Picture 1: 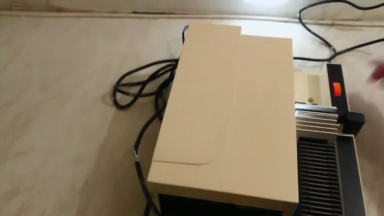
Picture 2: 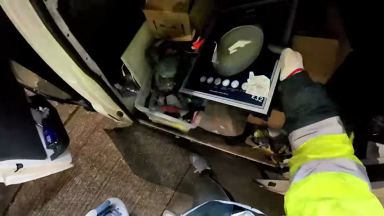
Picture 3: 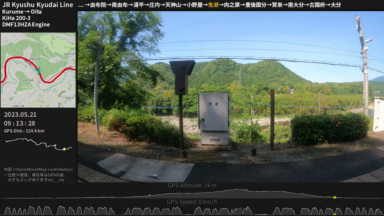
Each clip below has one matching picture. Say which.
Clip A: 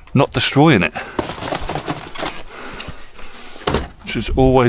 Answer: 2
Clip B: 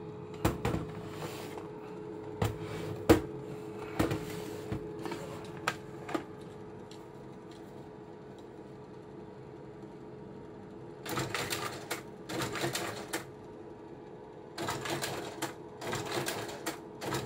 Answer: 1